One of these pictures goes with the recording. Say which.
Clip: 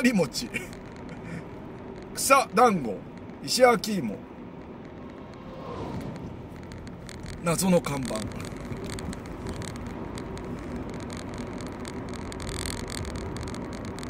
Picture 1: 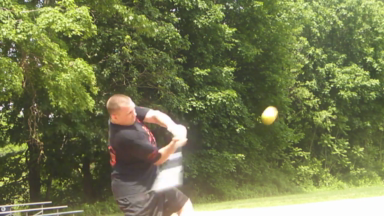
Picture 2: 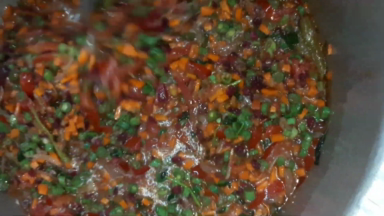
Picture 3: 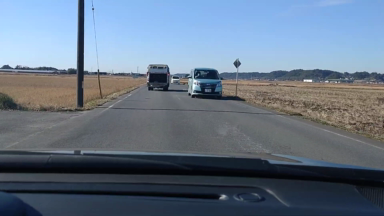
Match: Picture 3